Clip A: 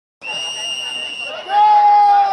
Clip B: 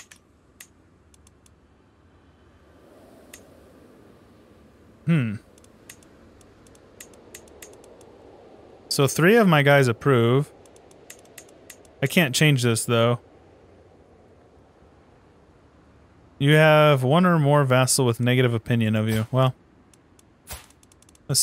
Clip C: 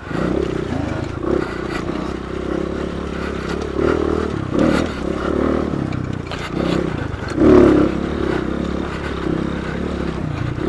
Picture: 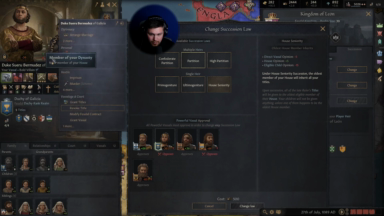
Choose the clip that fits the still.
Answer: B